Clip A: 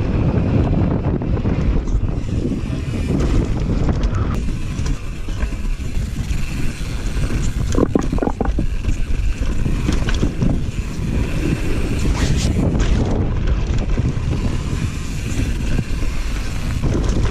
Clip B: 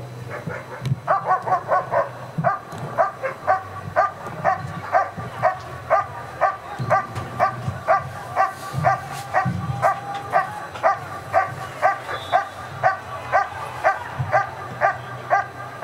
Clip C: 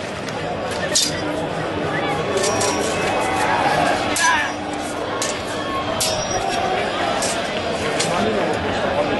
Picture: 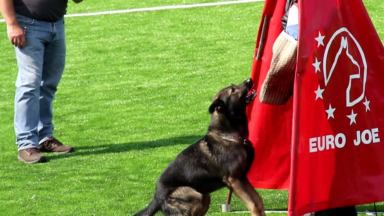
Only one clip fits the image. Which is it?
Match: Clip B